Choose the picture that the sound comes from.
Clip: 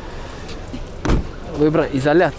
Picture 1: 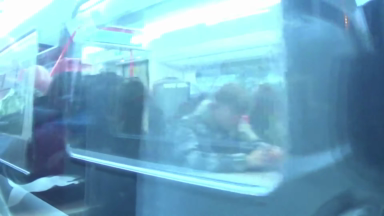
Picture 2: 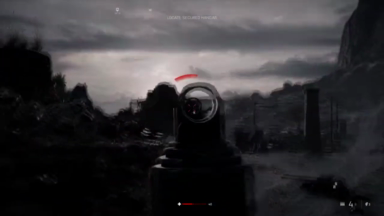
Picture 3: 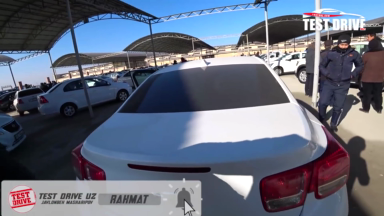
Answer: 3